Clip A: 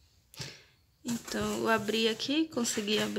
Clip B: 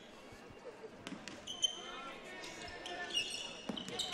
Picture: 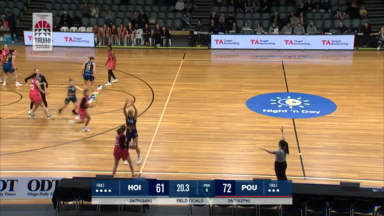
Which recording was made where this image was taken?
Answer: B